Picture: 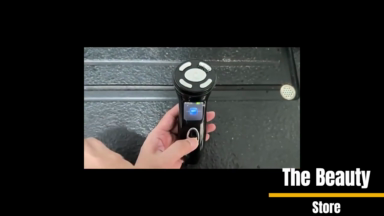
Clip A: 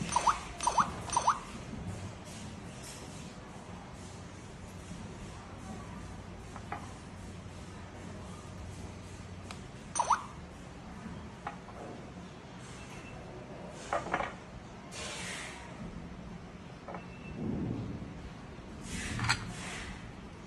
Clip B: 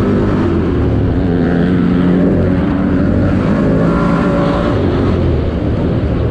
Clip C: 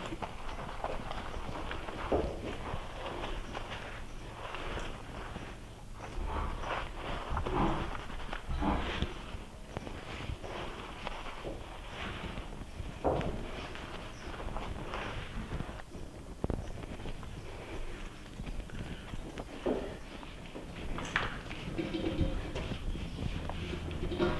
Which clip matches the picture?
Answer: A